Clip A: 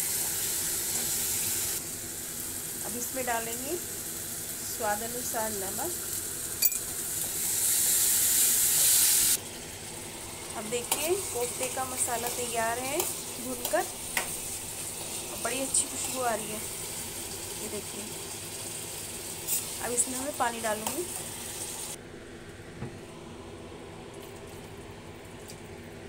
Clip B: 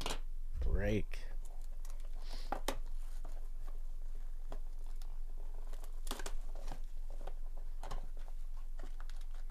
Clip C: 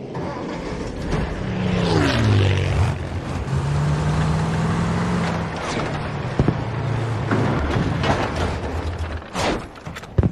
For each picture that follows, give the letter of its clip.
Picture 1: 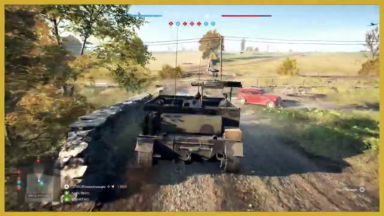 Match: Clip C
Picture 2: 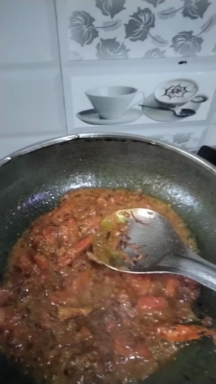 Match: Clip A